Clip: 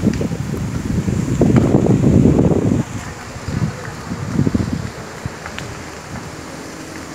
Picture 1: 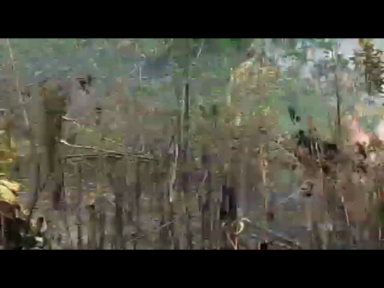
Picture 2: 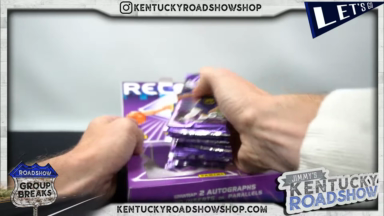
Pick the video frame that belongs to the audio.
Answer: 1